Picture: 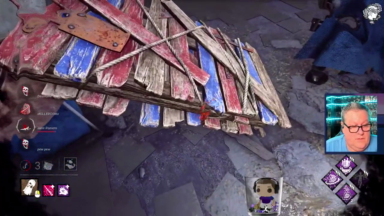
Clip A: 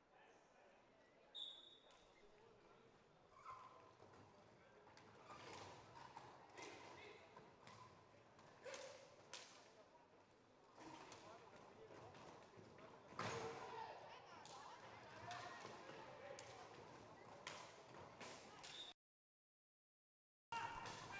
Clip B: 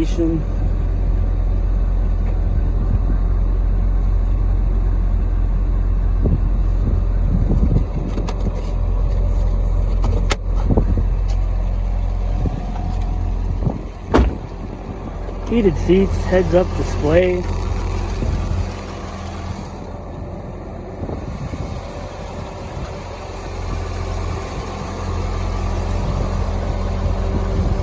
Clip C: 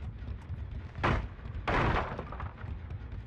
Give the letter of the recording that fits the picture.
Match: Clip C